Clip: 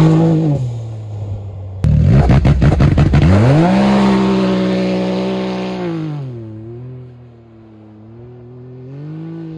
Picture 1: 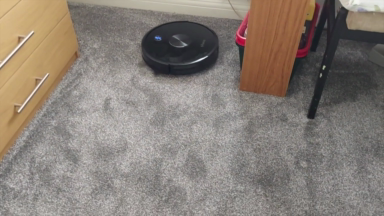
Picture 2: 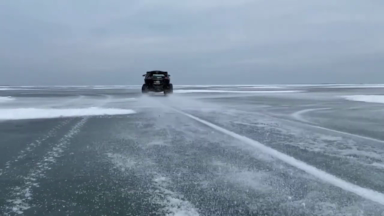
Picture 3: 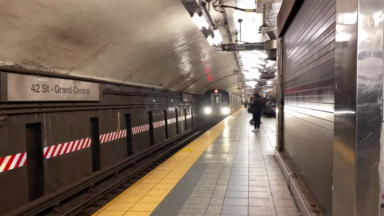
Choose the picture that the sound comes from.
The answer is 2